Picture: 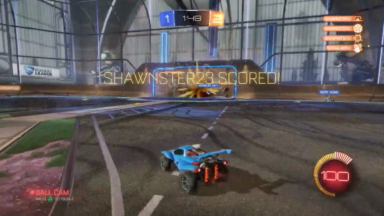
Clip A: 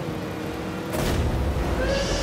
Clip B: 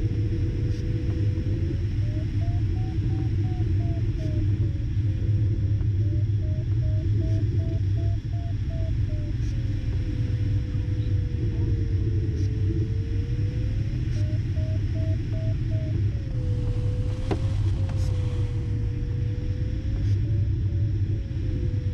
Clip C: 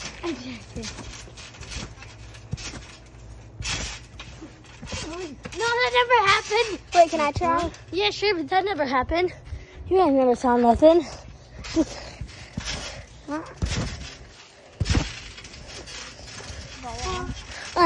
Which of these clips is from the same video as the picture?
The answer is A